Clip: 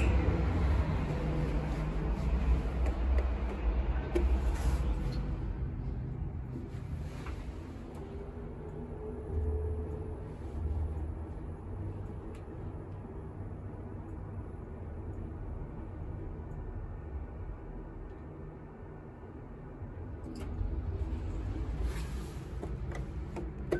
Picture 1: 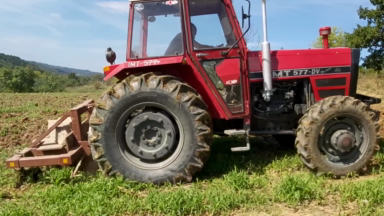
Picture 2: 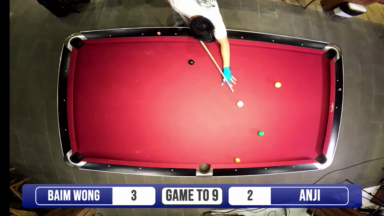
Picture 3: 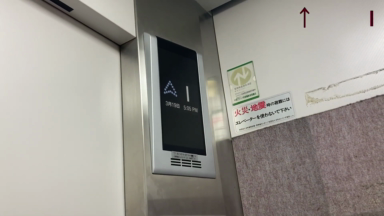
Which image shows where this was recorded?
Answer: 3